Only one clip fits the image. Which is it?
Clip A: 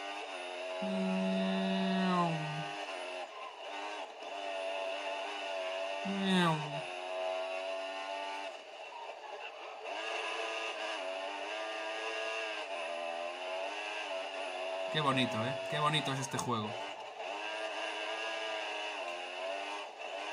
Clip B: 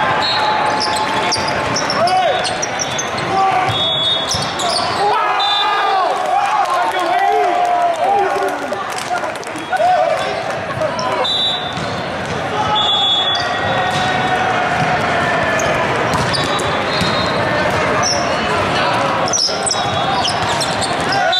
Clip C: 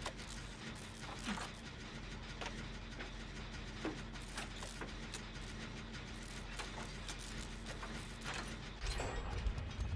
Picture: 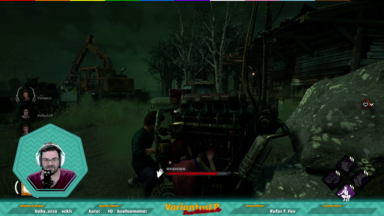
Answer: C